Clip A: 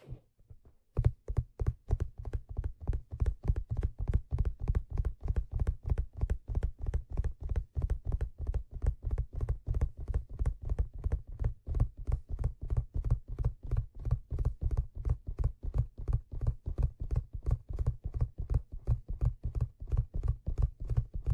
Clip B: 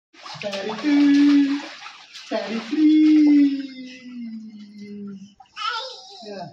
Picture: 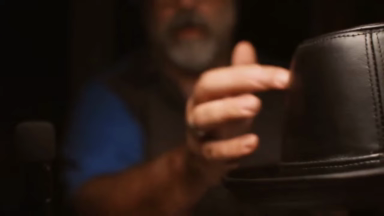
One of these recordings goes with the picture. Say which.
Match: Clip A